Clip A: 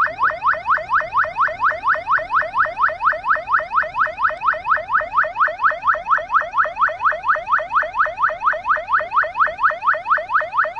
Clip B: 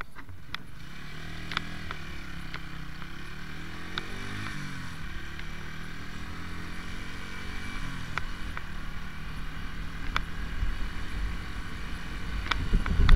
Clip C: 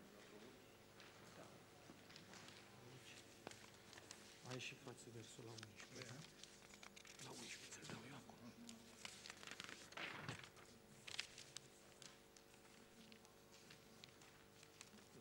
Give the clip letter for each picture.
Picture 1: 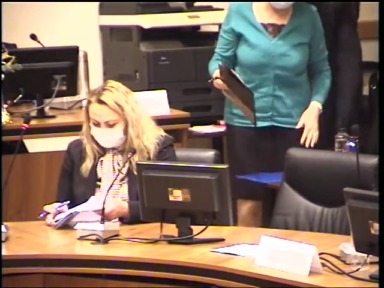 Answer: C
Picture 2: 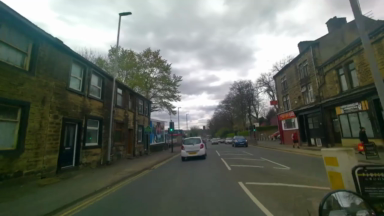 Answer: B